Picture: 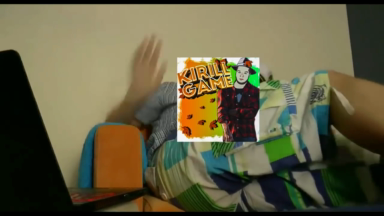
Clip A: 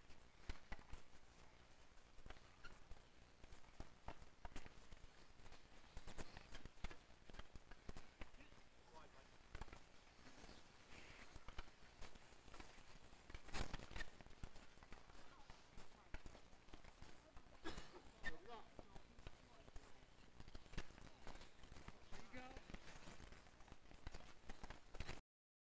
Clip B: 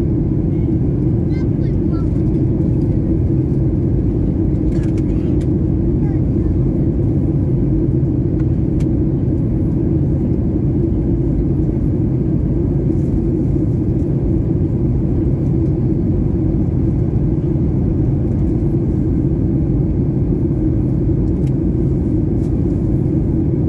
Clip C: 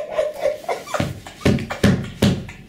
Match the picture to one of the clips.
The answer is C